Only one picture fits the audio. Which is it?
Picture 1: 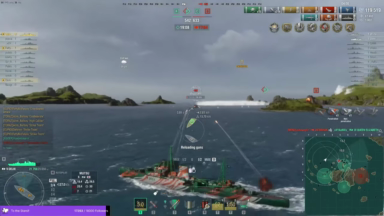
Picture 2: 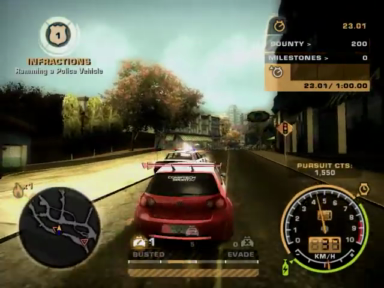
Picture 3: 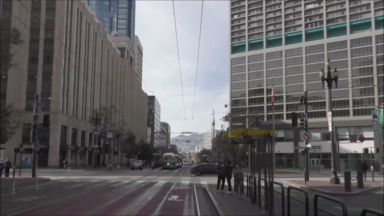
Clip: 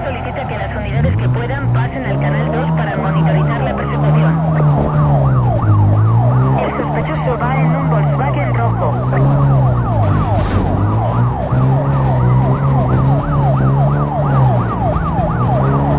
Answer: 2